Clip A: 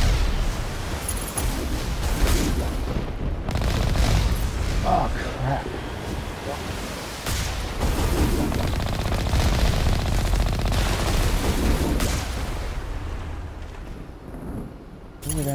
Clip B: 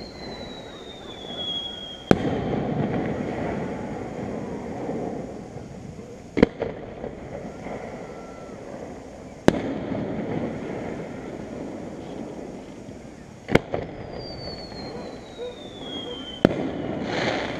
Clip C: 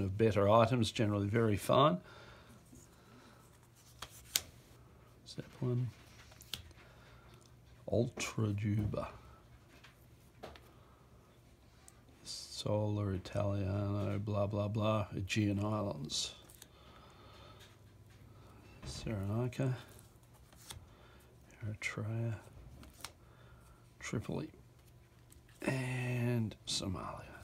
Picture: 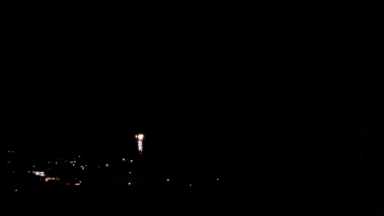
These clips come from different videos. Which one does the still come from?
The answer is B